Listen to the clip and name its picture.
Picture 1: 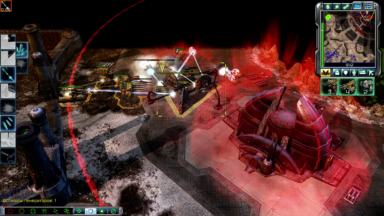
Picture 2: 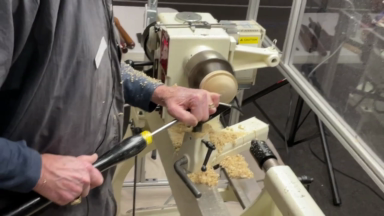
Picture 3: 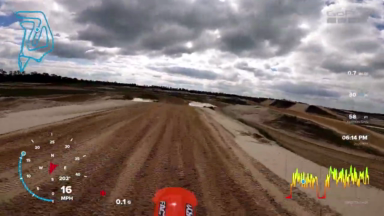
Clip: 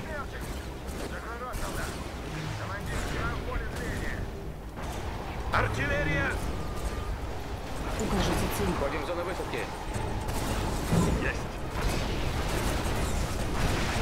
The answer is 1